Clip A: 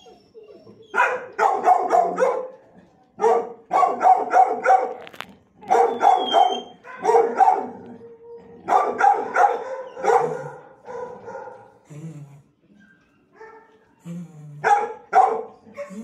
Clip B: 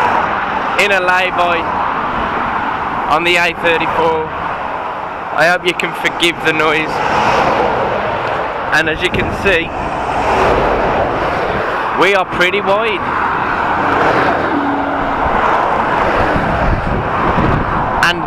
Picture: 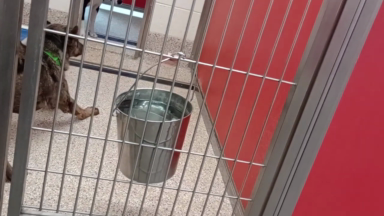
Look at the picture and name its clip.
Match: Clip A